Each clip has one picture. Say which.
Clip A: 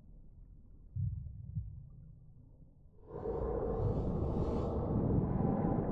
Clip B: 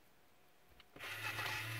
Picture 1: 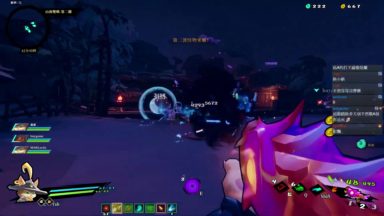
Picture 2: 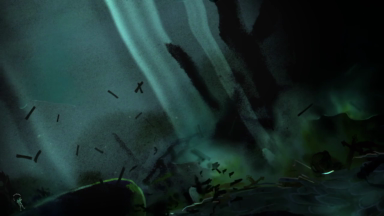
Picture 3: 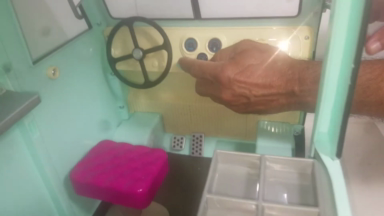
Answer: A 2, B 3